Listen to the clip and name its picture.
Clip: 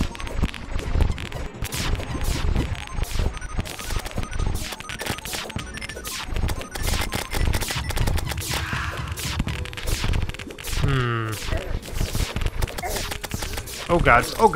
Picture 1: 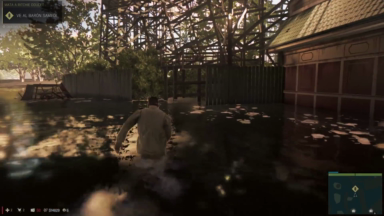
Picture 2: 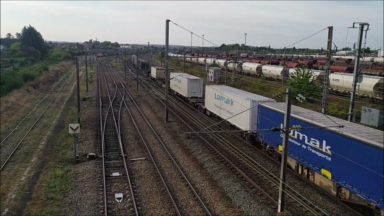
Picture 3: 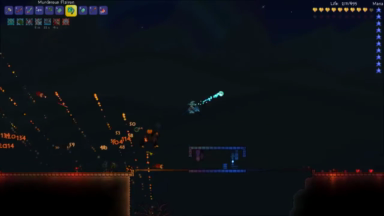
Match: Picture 3